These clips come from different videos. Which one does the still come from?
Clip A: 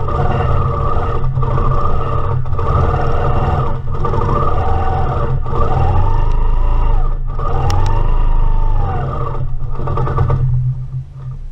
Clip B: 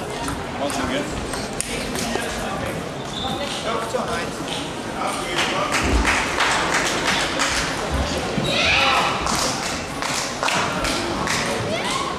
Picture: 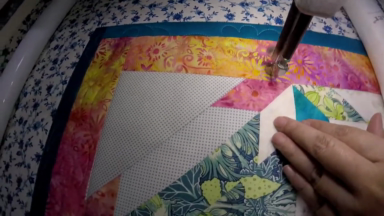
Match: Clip A